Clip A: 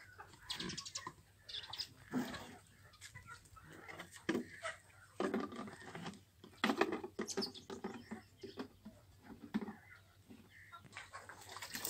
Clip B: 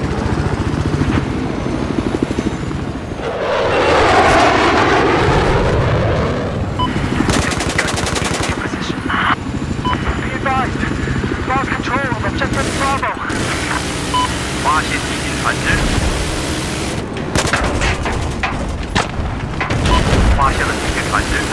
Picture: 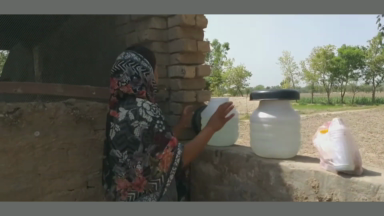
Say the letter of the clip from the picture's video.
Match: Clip A